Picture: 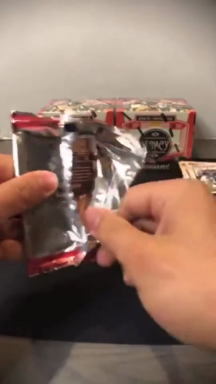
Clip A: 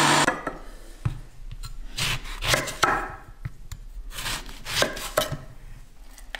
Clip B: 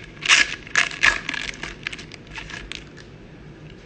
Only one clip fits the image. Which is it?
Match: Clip B